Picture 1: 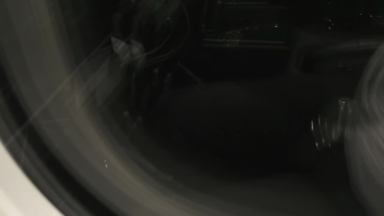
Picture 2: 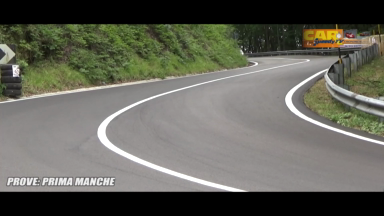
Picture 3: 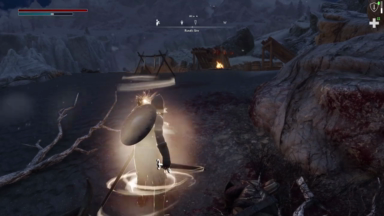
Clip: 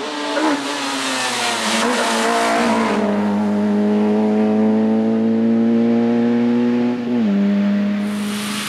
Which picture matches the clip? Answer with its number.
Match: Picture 2